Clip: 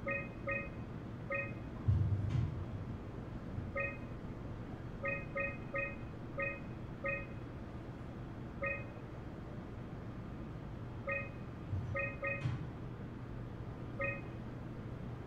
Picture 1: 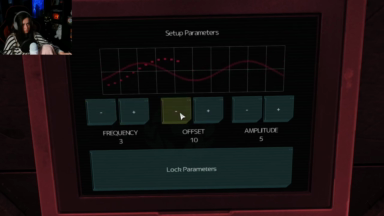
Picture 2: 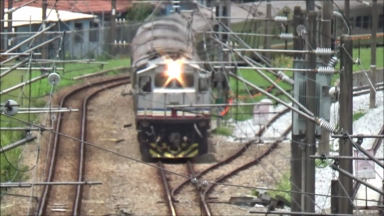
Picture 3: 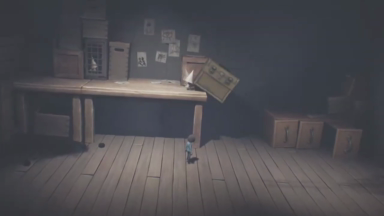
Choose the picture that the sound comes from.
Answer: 1